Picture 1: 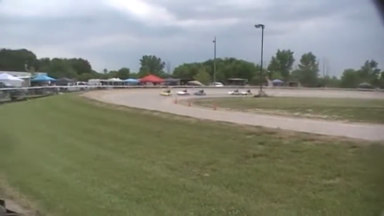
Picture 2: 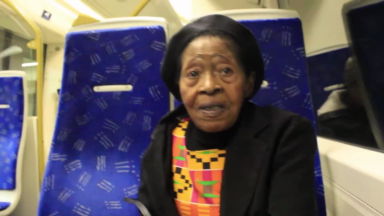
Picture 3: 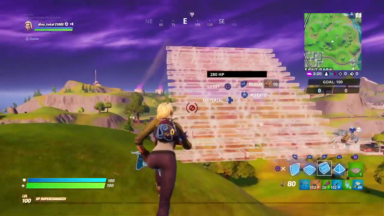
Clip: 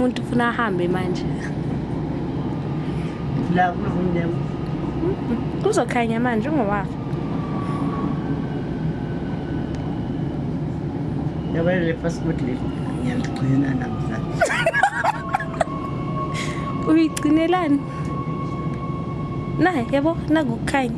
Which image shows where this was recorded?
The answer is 2